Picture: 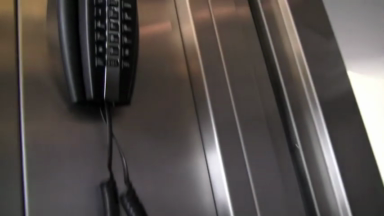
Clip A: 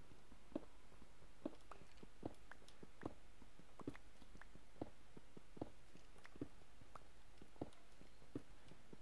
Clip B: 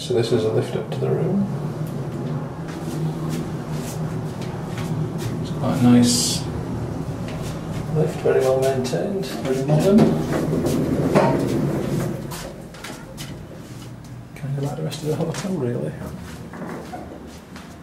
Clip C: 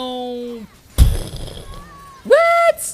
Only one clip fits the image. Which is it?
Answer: B